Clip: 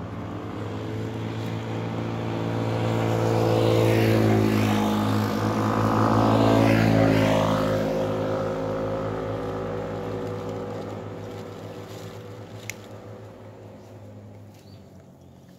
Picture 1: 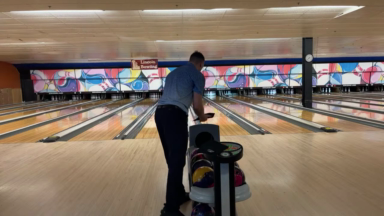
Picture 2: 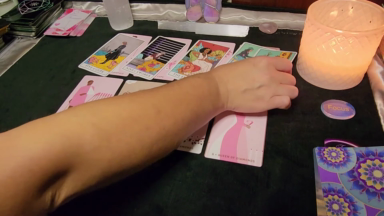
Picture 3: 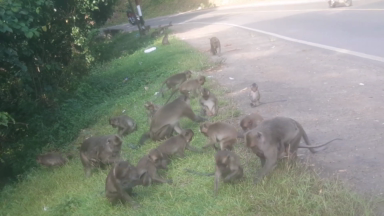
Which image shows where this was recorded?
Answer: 3